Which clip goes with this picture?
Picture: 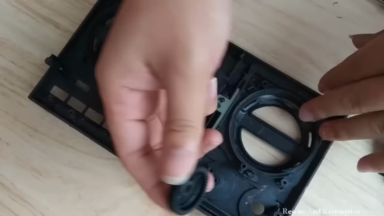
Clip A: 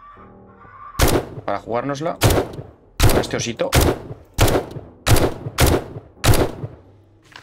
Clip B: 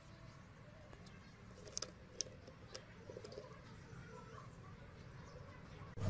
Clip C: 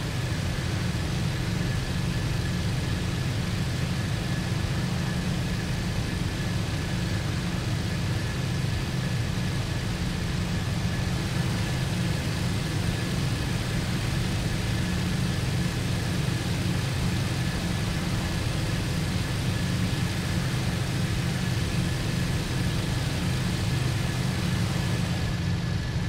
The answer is B